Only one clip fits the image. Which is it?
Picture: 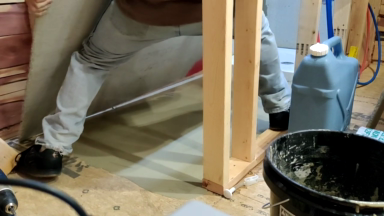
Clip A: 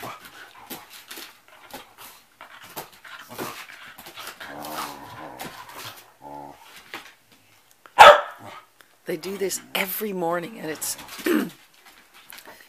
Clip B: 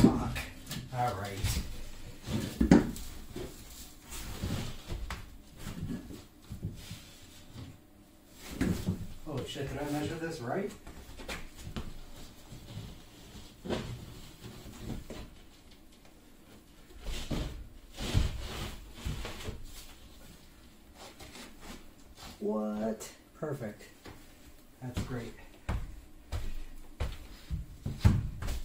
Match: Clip B